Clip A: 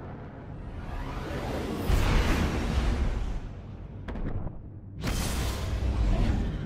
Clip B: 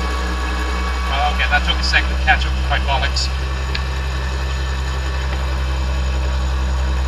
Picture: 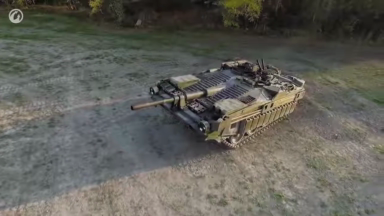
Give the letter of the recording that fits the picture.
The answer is B